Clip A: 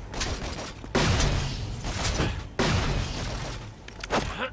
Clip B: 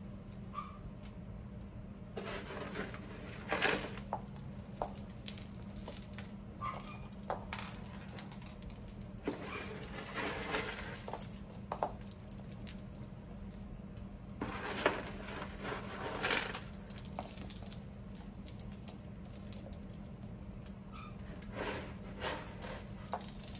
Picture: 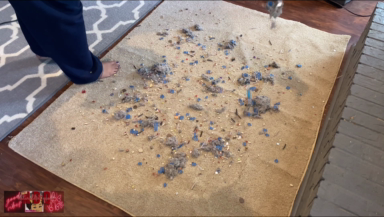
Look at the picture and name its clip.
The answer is B